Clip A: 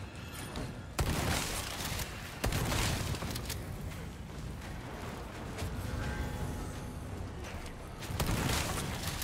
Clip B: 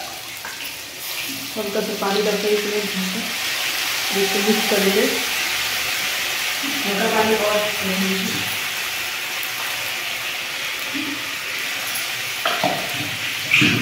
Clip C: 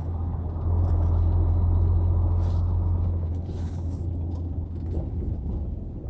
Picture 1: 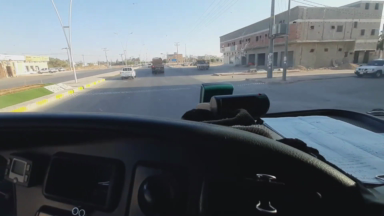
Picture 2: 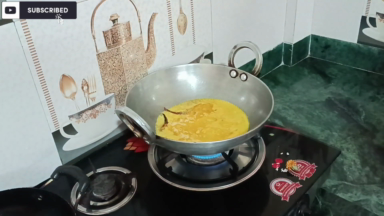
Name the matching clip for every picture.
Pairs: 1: C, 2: B